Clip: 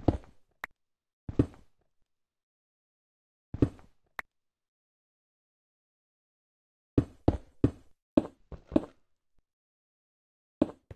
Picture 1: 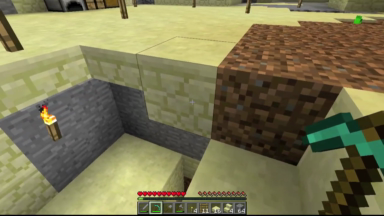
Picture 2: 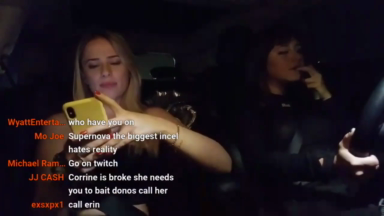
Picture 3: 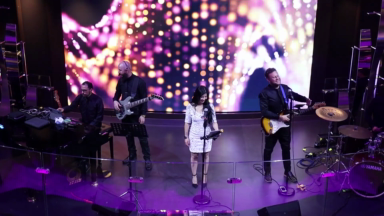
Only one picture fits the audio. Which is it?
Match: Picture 1